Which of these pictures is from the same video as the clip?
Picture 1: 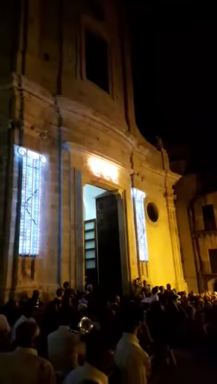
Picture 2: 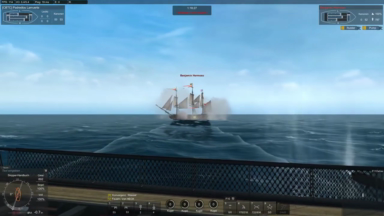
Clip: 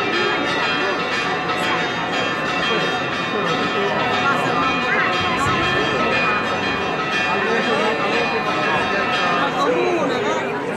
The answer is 1